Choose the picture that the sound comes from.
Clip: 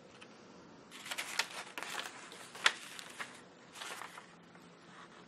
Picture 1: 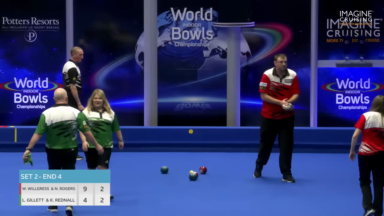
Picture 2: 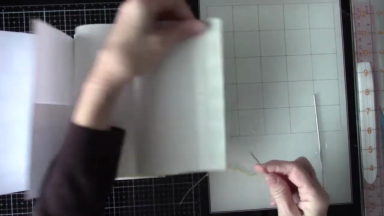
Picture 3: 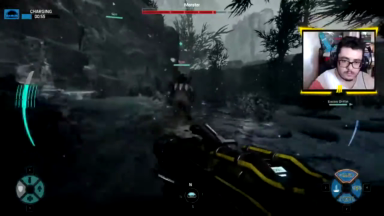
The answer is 2